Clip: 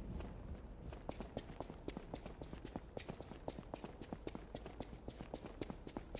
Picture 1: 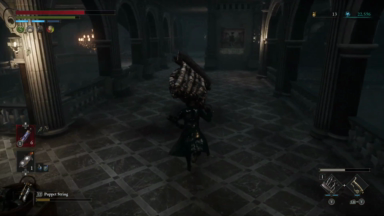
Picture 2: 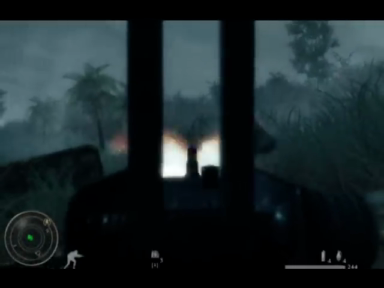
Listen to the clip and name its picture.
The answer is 1